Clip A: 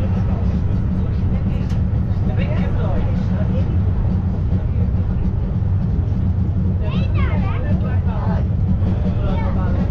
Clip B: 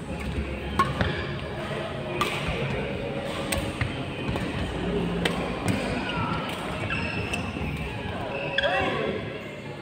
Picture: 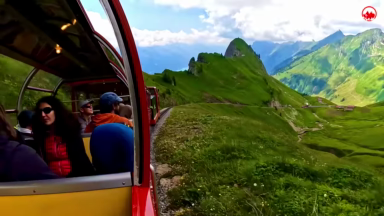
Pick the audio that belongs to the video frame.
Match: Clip A